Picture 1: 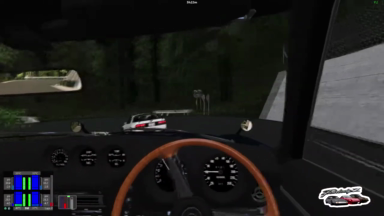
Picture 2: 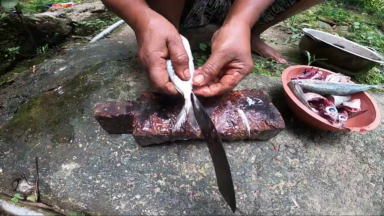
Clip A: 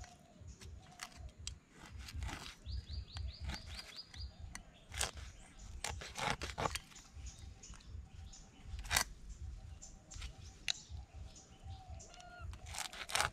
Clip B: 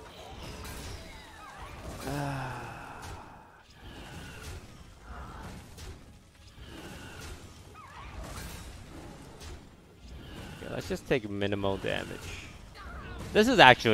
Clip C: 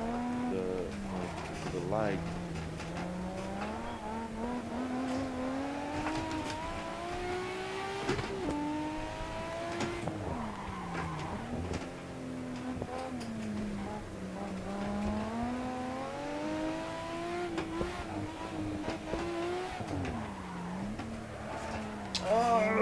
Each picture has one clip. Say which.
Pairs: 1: C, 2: A